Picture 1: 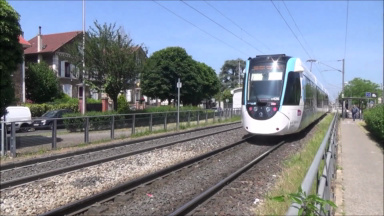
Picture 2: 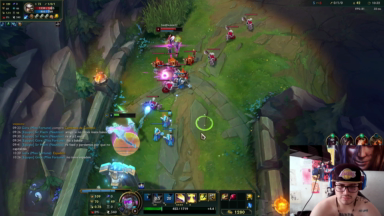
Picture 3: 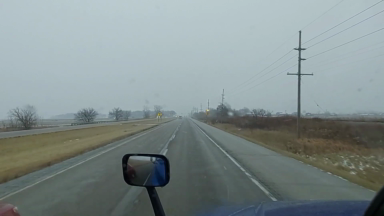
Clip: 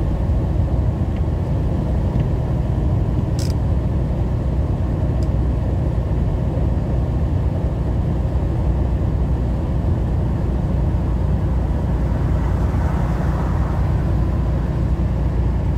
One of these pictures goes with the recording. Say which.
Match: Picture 3